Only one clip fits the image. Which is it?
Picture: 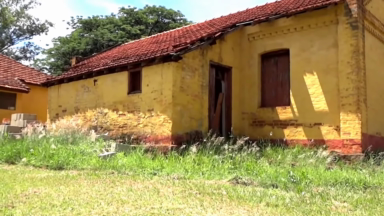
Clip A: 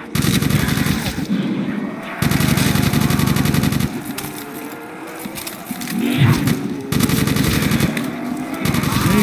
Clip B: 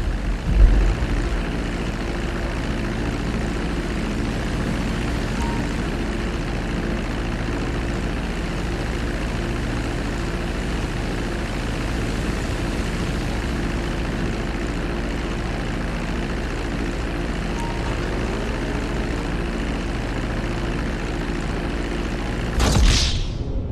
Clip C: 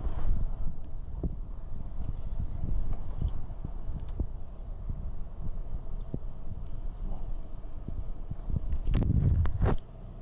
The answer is C